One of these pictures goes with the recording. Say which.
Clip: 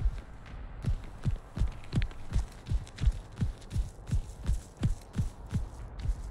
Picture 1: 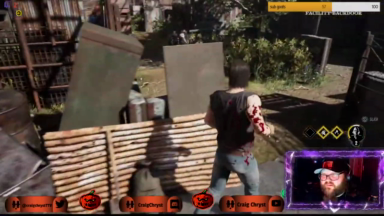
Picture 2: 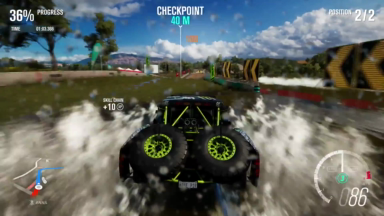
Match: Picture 1